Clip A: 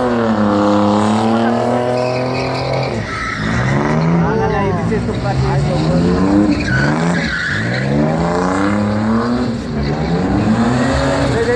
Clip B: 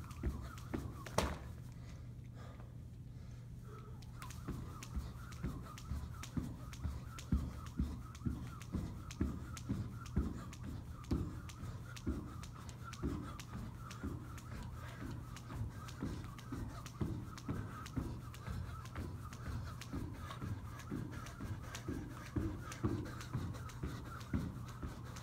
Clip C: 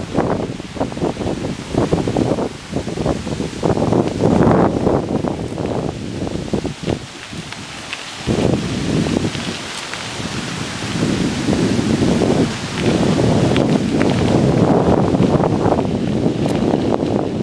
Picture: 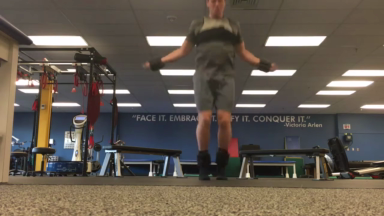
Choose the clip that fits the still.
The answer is B